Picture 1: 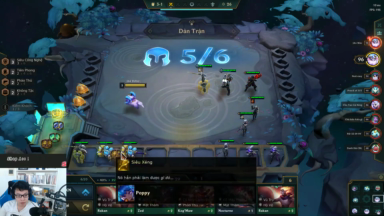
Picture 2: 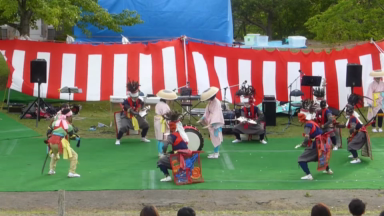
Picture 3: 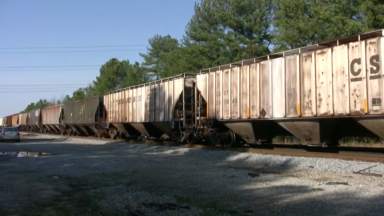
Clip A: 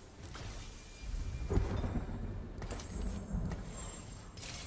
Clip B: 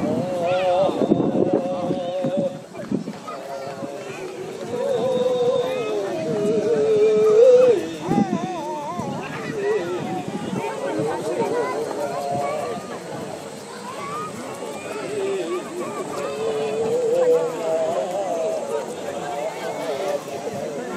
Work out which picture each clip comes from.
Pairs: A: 1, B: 2